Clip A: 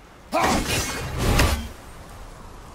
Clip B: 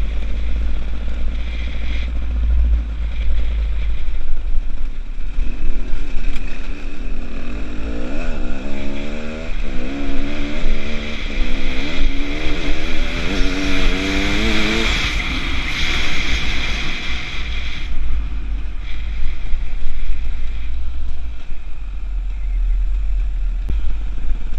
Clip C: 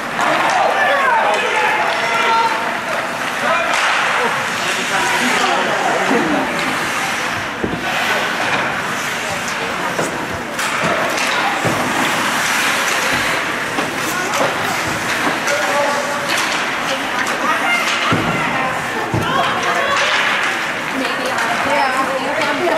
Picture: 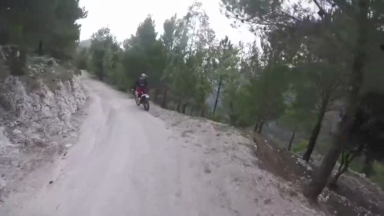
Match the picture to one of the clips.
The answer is B